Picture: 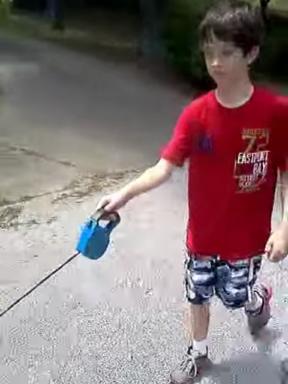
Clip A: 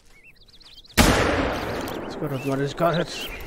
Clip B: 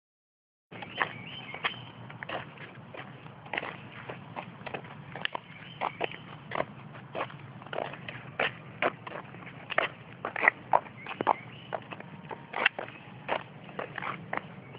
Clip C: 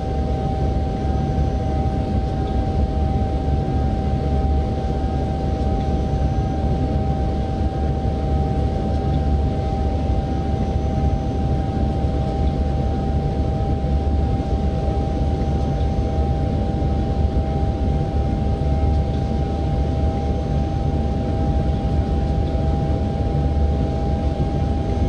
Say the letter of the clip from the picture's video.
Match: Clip B